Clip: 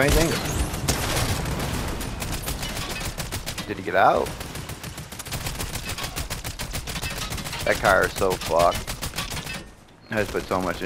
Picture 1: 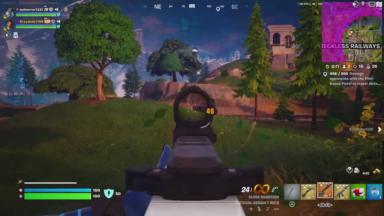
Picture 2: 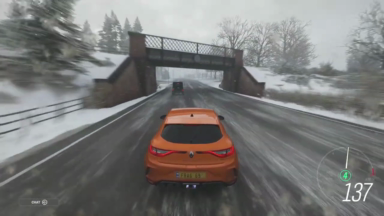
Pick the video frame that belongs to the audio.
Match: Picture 1